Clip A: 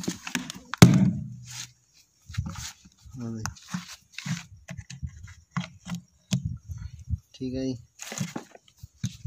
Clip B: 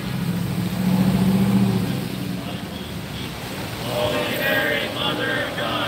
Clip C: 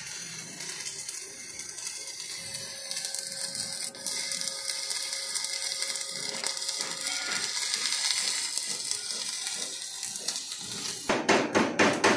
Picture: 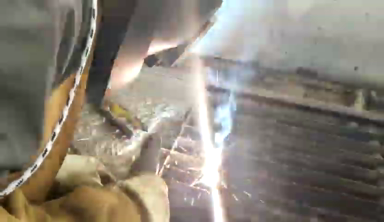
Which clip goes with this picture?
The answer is C